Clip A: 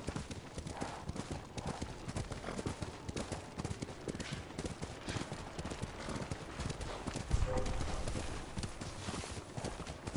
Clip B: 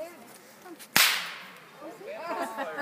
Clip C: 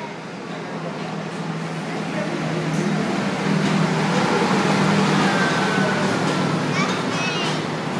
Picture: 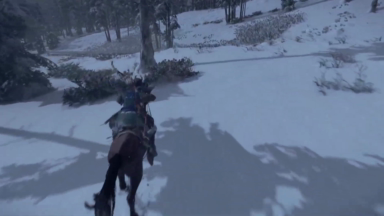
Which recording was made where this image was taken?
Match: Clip A